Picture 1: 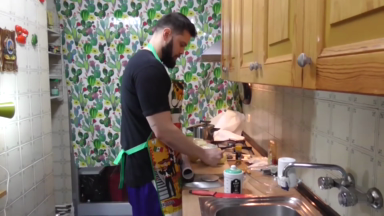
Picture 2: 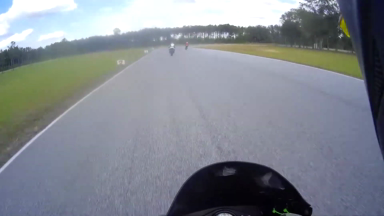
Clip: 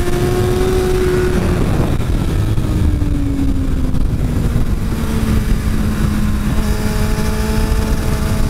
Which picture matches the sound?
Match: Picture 2